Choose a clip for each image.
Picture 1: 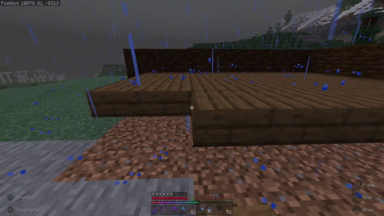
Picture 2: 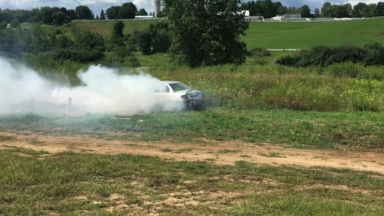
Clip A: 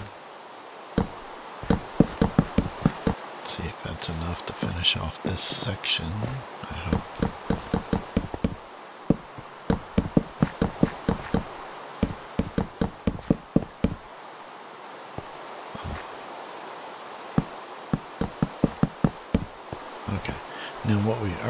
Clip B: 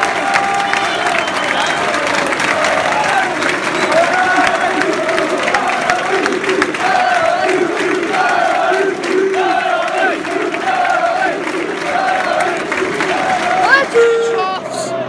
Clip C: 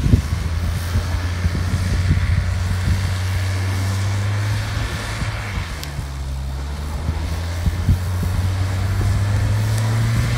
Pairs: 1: A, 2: C